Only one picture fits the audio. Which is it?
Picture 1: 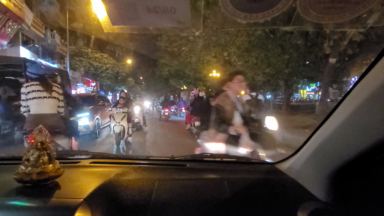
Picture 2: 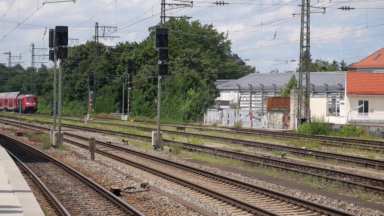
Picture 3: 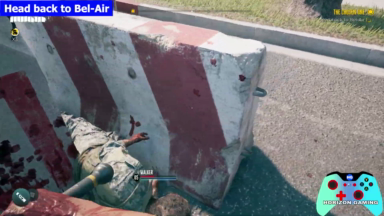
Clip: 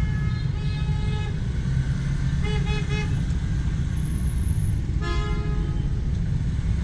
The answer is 1